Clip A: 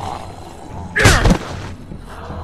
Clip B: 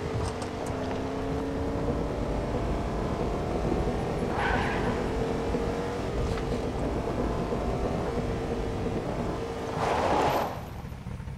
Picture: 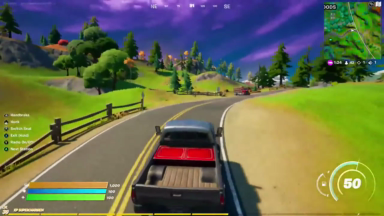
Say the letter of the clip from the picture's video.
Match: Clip B